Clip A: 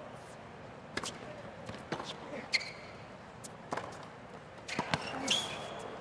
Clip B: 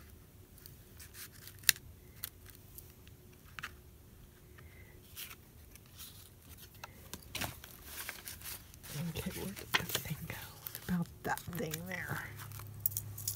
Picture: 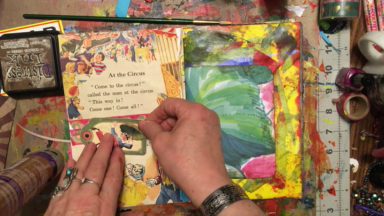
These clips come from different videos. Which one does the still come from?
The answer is B